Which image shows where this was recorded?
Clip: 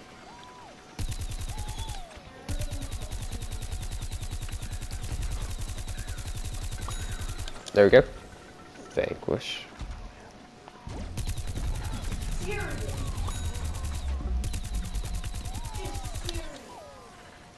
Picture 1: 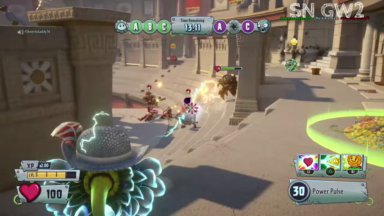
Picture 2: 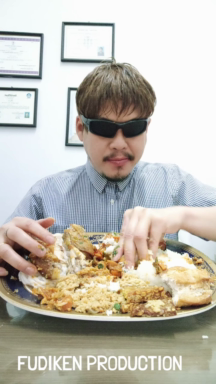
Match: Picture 1